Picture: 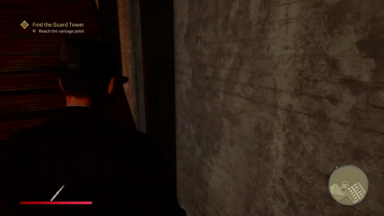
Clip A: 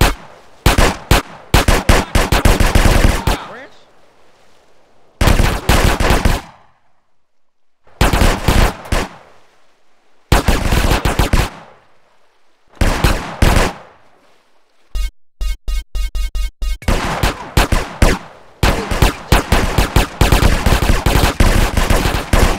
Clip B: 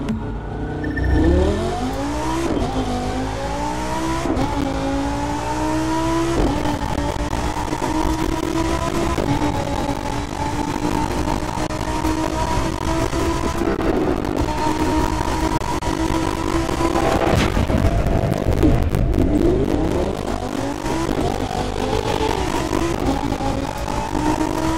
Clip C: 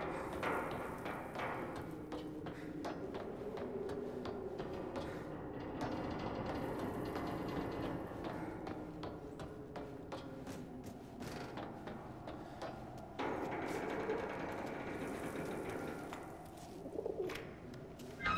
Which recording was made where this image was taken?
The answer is C